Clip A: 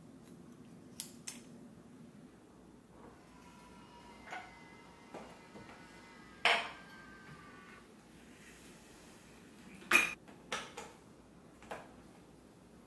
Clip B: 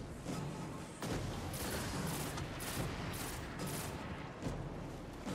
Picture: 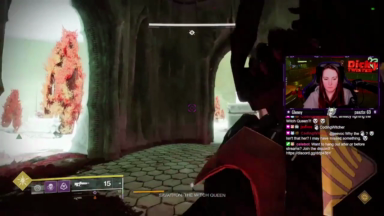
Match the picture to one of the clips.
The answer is B